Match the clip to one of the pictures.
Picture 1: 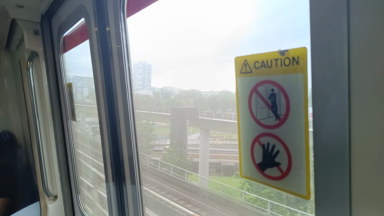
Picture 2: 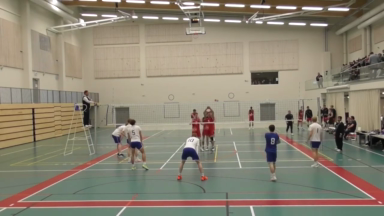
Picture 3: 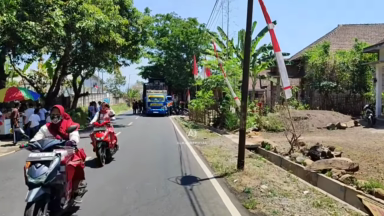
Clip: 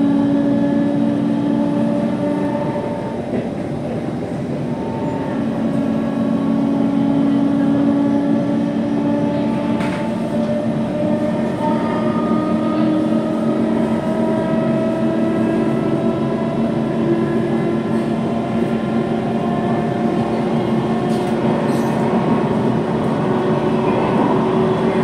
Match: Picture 1